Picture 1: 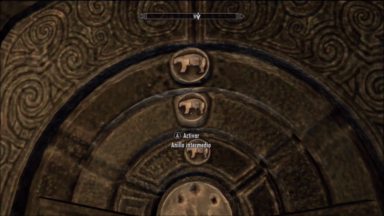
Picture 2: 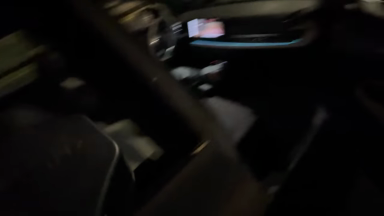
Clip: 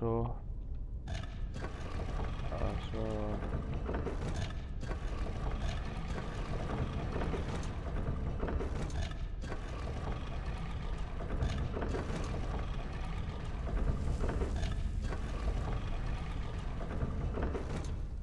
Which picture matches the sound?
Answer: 1